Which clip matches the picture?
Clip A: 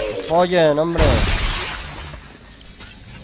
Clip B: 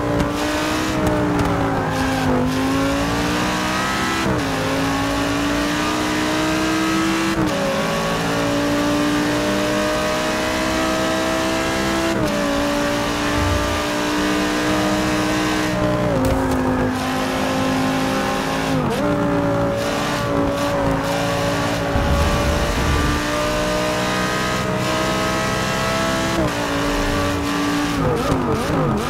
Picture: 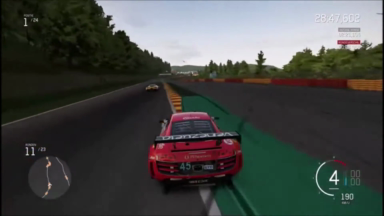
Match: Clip B